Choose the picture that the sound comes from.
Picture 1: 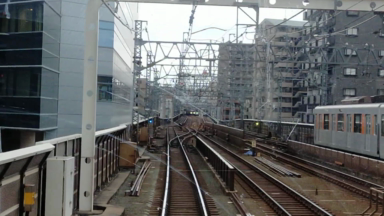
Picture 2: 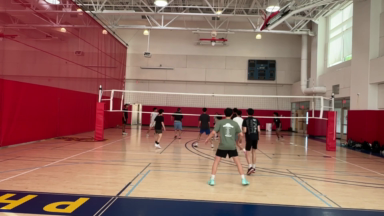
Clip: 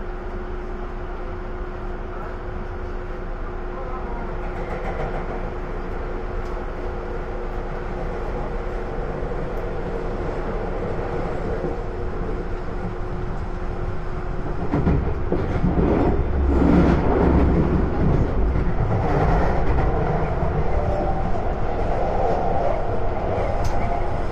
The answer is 1